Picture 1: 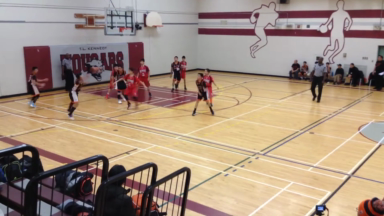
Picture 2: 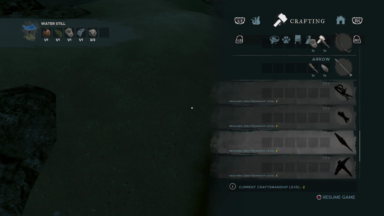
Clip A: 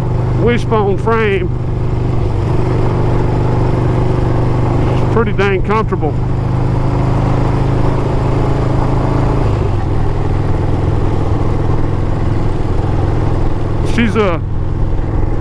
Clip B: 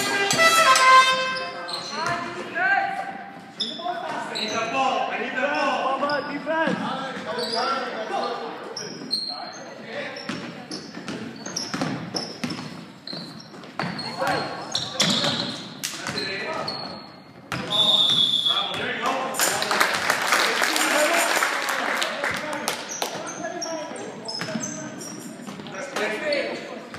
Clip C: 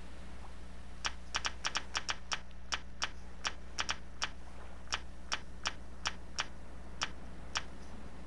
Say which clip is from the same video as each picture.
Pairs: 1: B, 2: C